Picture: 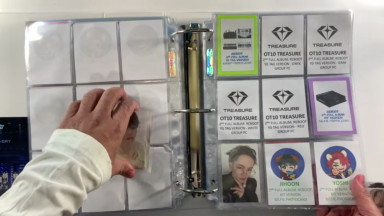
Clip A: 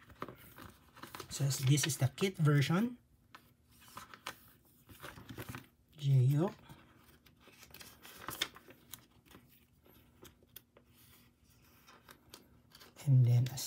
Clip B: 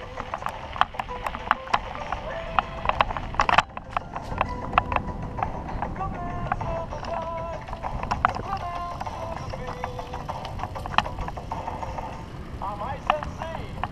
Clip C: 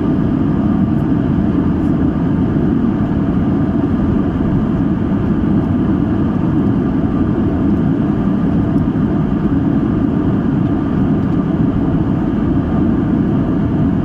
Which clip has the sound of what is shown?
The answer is A